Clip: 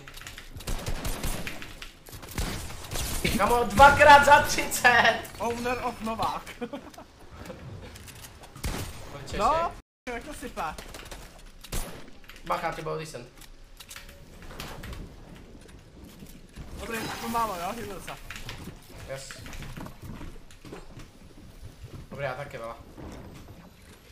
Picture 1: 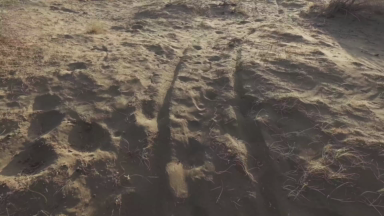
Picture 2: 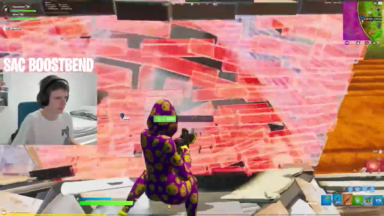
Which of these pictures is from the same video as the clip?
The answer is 2